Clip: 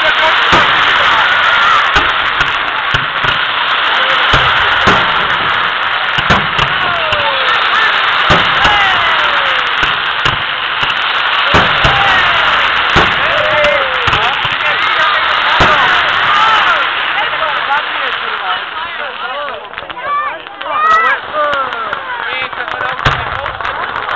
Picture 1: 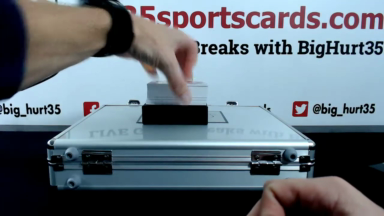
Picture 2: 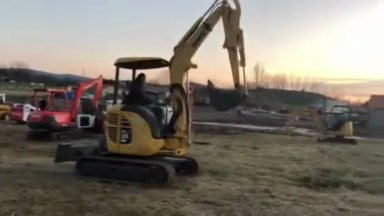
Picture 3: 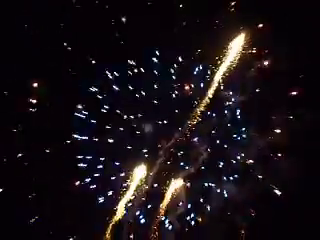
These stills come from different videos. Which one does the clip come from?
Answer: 3